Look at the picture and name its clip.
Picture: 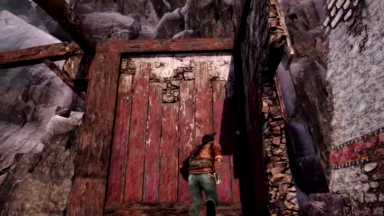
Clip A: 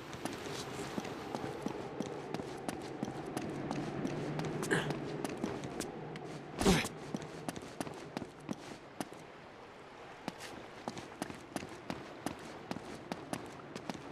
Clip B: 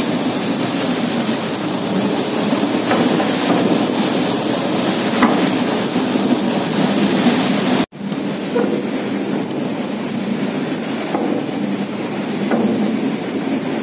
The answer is A